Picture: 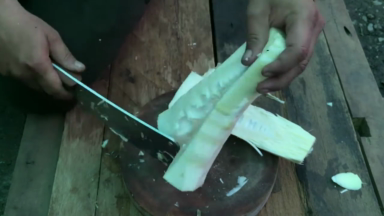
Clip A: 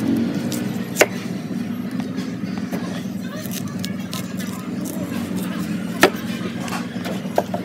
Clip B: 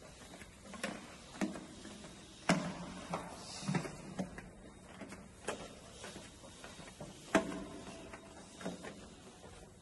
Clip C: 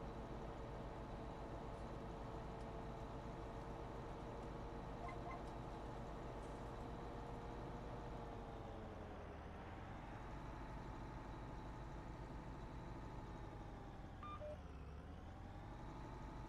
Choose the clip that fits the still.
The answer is A